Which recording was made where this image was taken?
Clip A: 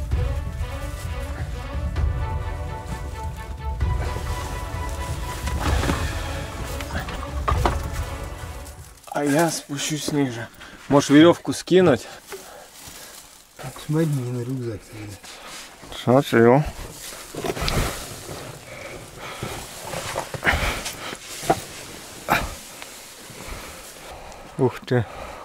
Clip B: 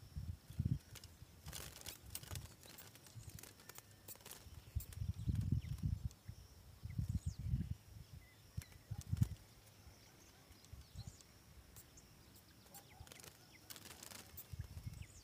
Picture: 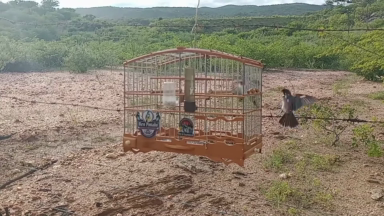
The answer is B